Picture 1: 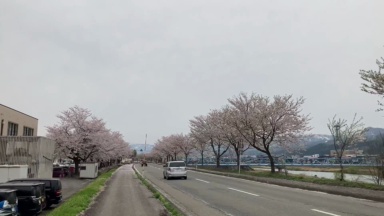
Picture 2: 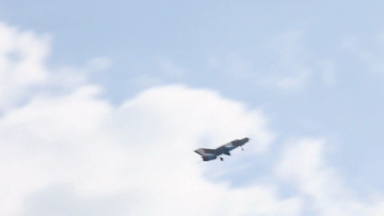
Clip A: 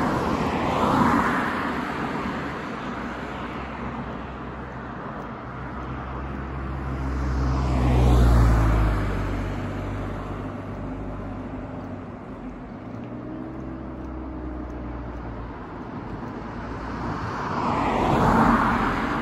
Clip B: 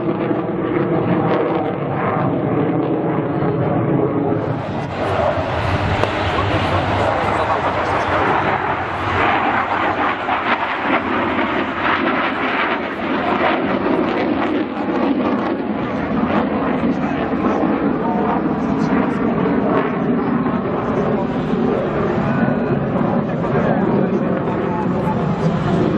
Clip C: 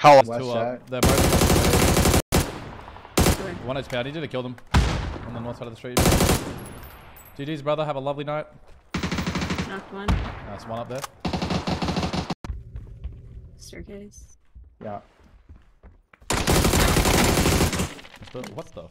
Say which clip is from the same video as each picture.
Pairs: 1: A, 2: B